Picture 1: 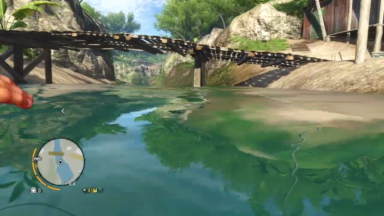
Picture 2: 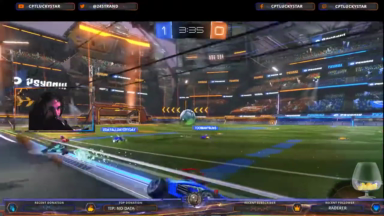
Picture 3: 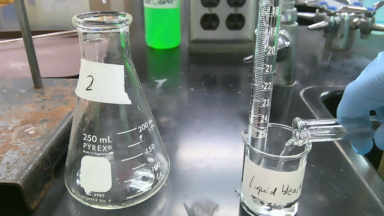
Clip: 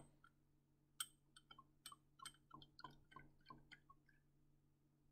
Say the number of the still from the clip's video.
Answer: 3